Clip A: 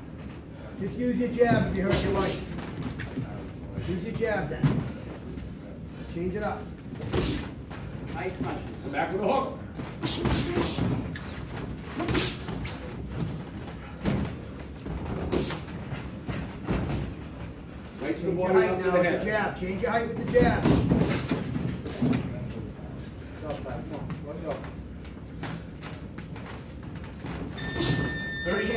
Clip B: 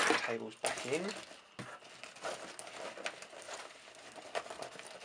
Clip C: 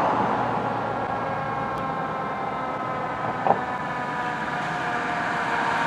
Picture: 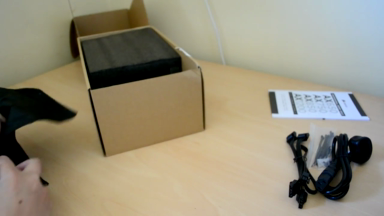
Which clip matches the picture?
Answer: B